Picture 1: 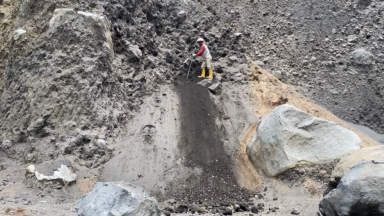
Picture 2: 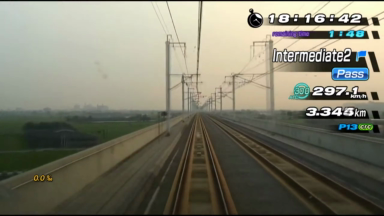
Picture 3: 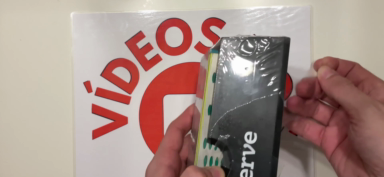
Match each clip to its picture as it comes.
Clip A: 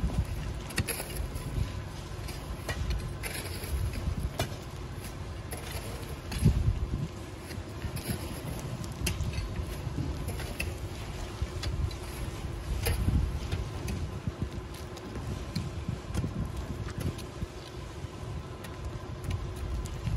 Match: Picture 1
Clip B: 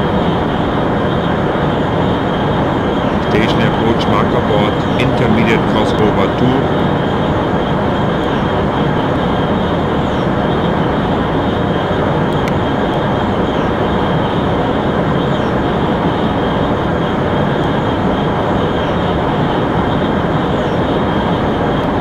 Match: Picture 2